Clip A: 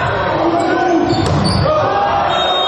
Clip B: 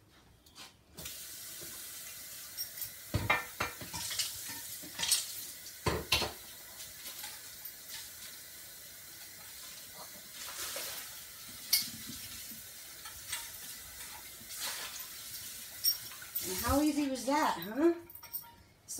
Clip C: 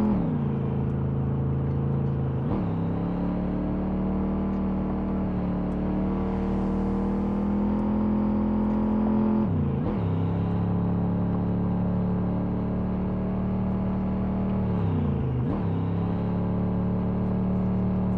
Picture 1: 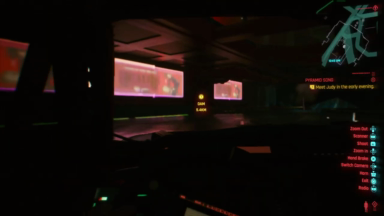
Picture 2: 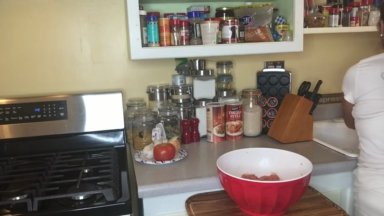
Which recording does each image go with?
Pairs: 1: C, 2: B